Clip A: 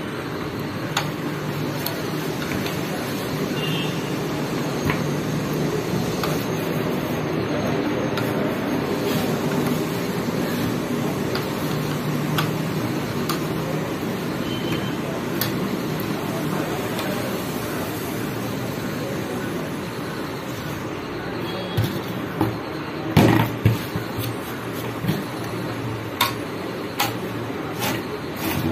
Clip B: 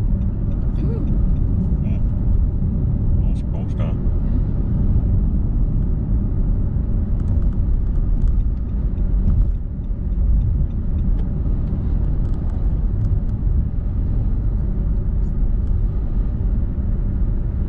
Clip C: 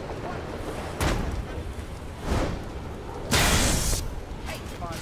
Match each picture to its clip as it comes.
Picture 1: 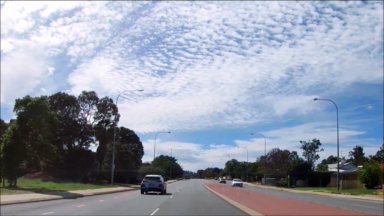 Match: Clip B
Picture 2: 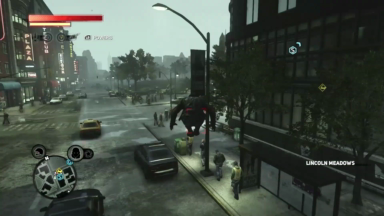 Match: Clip C